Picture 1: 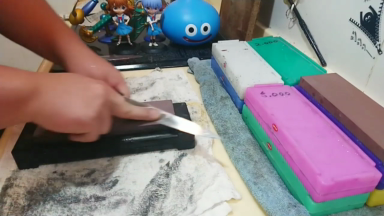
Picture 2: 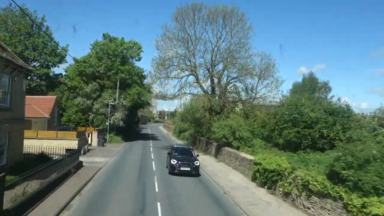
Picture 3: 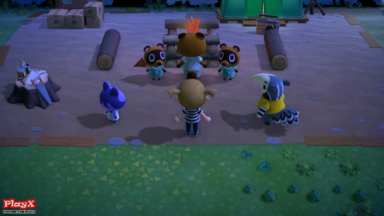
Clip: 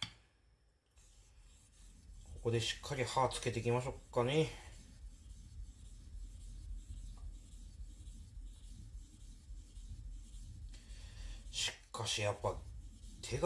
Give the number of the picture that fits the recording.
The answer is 1